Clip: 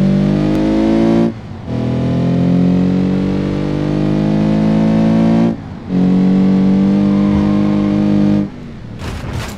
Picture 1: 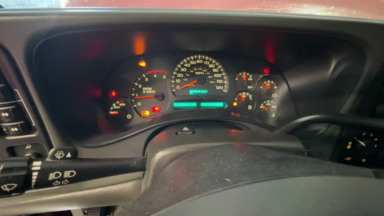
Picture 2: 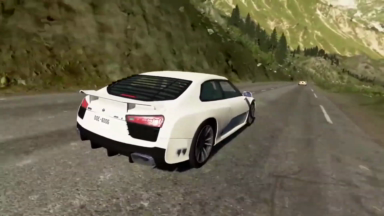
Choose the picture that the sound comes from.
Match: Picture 2